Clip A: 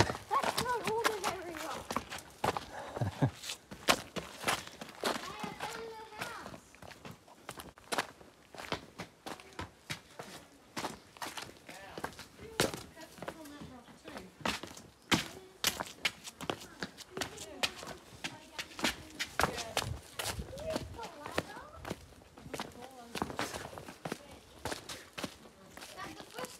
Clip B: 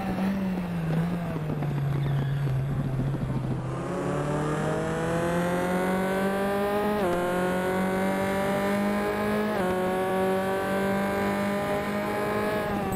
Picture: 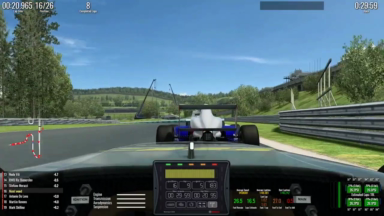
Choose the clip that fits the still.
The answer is B